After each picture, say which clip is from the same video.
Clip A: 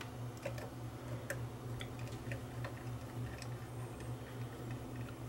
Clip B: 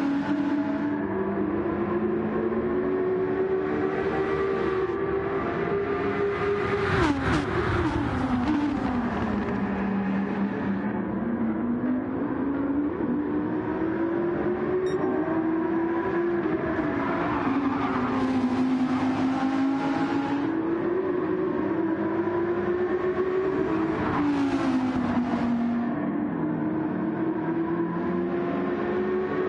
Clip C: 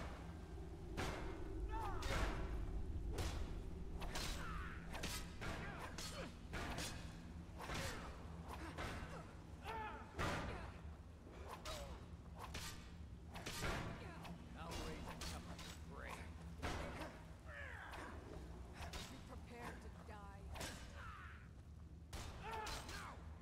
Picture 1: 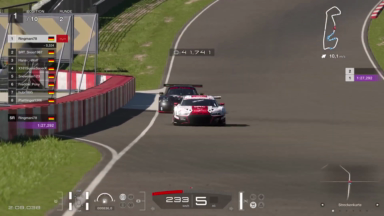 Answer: B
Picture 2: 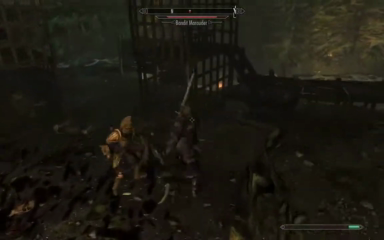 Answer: C